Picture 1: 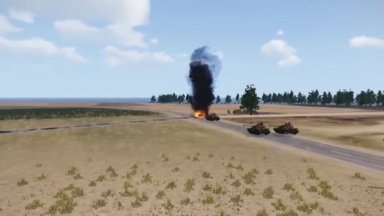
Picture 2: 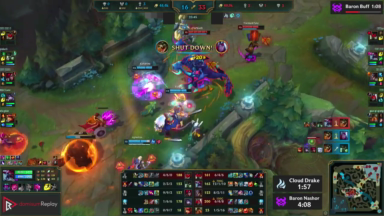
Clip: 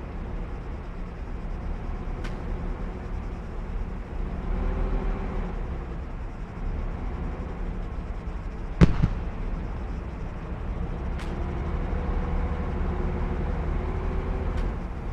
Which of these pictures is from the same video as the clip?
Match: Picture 1